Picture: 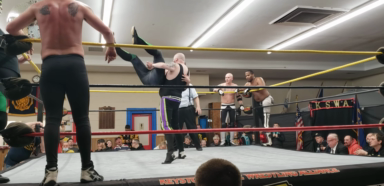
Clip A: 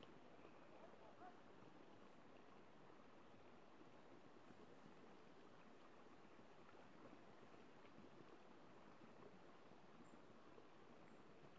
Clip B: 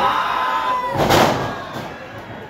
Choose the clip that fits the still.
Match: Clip B